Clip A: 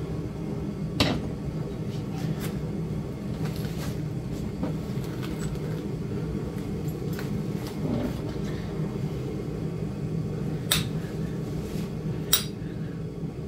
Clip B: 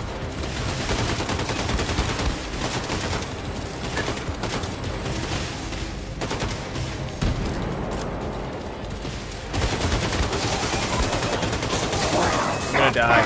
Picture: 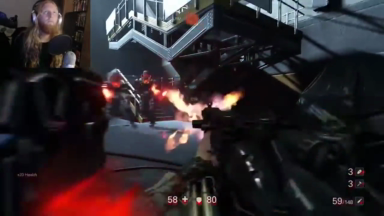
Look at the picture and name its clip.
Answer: B